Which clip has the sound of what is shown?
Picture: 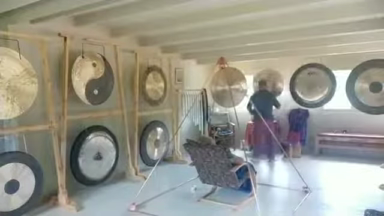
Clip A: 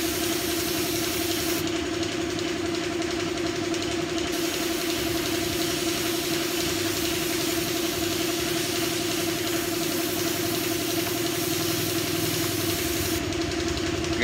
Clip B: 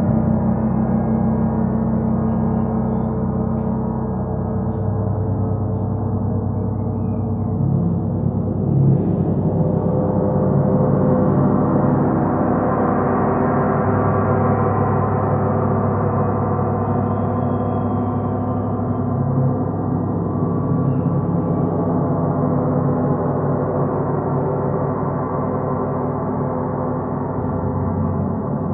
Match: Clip B